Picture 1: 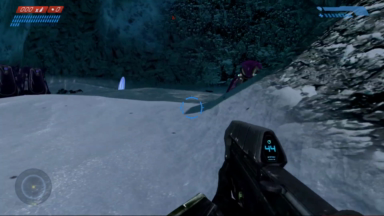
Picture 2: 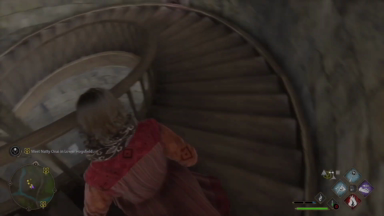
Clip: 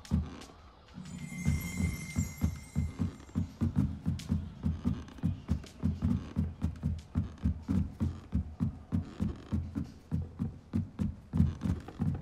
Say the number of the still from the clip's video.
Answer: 2